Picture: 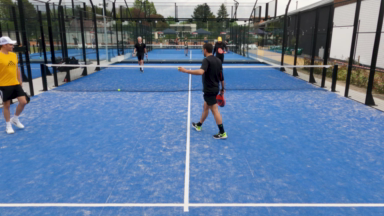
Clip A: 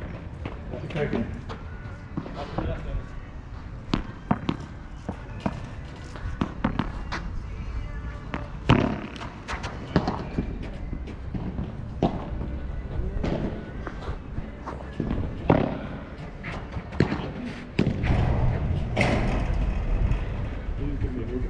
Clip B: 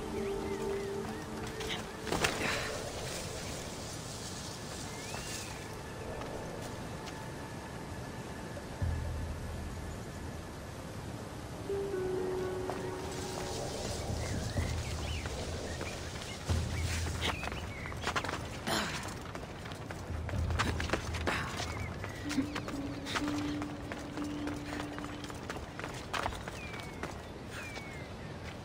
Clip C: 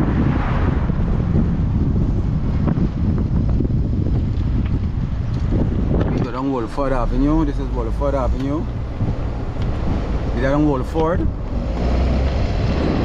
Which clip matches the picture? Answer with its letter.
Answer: A